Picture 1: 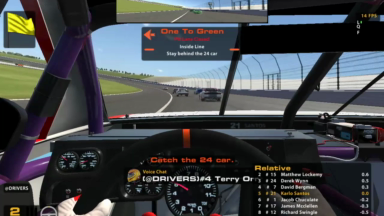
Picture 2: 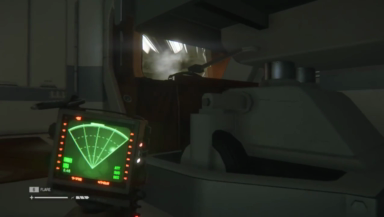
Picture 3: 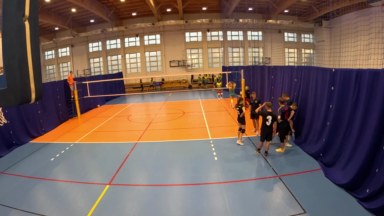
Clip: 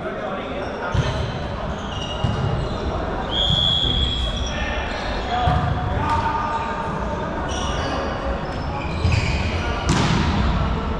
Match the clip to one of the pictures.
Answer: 3